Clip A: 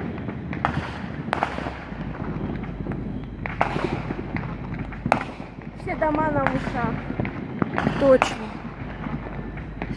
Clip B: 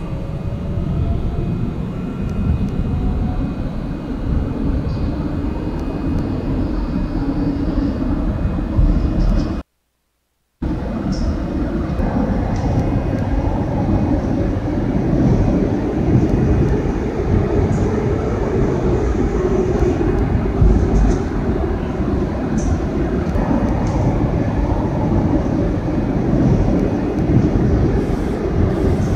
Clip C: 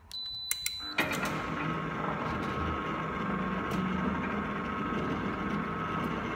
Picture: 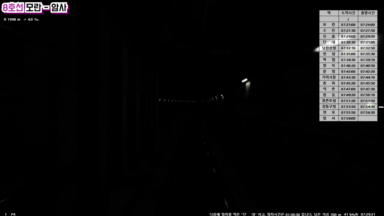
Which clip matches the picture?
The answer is B